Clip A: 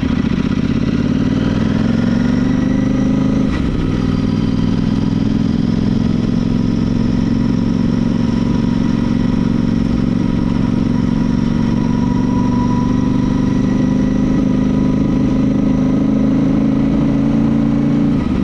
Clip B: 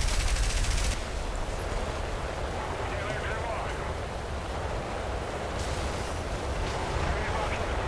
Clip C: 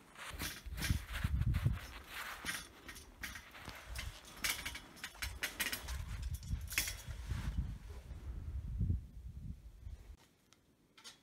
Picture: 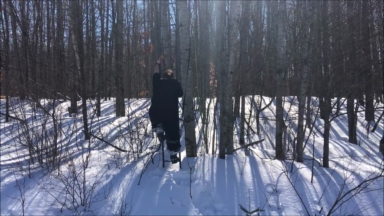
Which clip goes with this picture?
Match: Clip C